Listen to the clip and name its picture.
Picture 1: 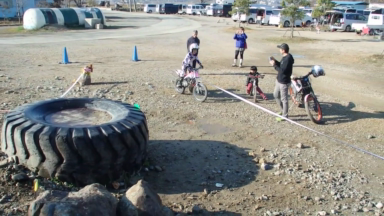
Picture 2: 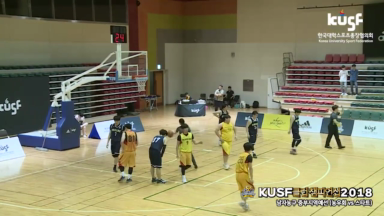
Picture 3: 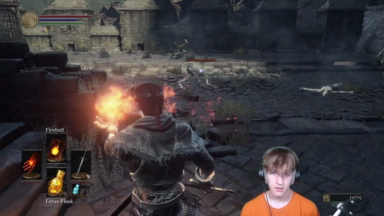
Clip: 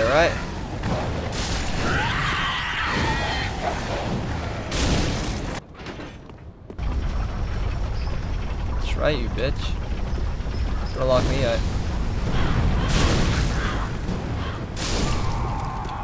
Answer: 3